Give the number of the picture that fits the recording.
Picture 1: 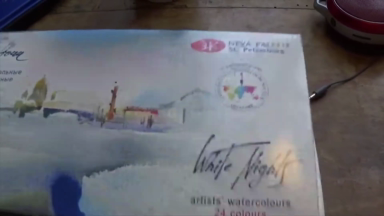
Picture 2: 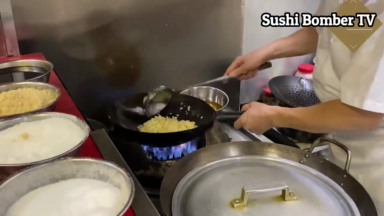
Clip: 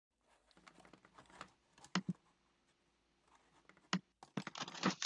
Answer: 1